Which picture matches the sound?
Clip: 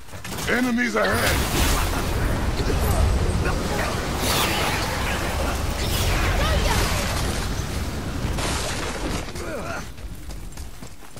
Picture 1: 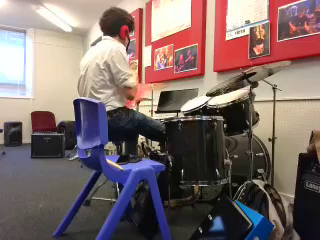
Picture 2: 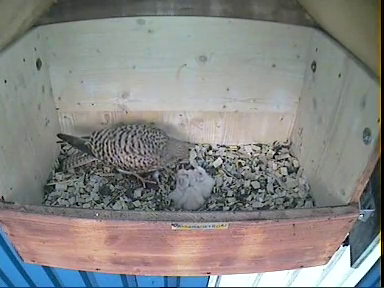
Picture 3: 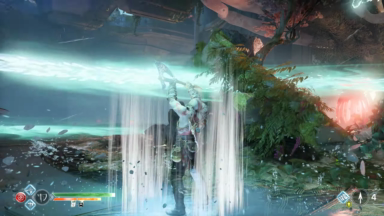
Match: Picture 3